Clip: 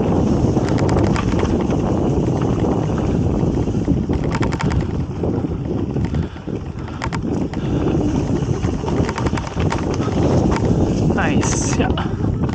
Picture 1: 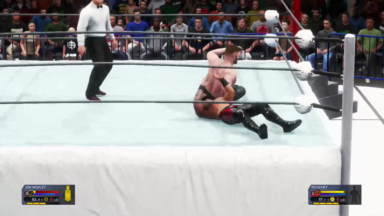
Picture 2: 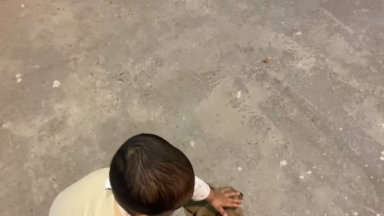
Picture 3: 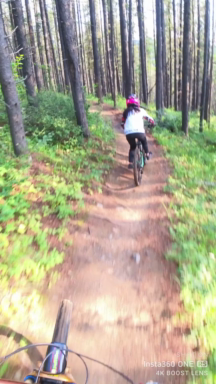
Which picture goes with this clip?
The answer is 3